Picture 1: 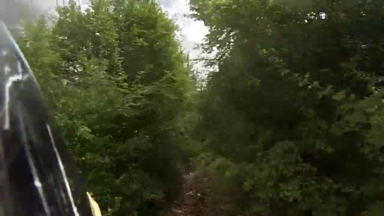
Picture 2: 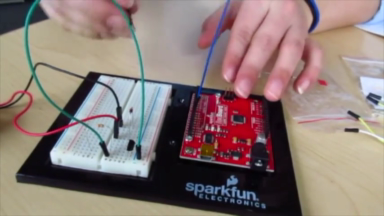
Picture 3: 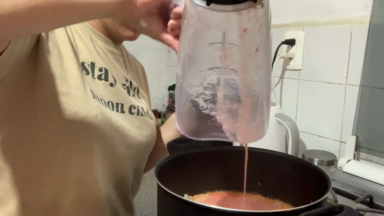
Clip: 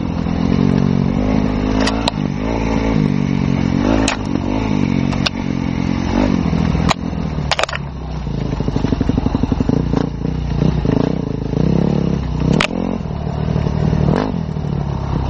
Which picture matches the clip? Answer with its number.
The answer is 1